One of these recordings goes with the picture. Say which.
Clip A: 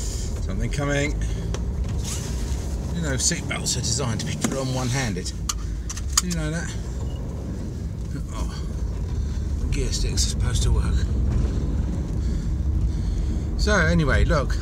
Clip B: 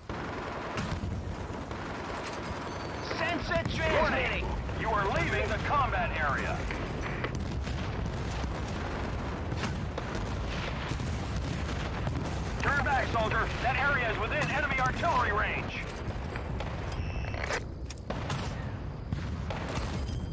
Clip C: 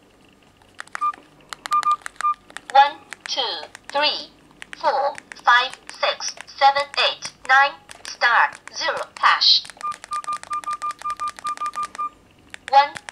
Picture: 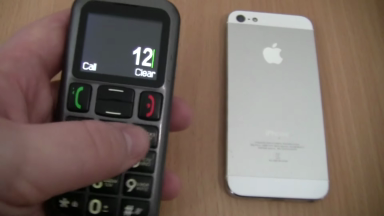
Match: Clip C